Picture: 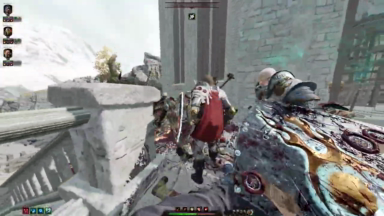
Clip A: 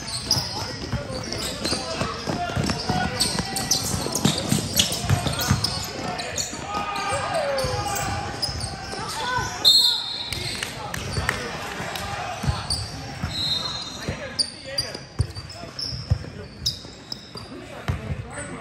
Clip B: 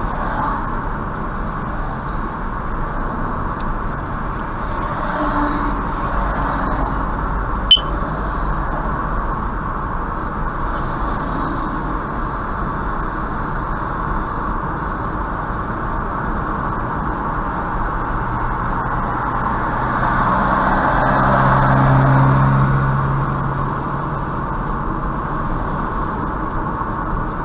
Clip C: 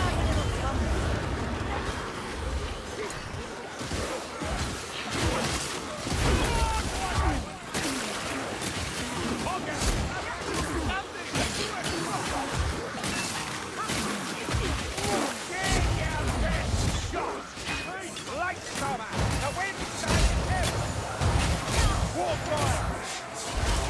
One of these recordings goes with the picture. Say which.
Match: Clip C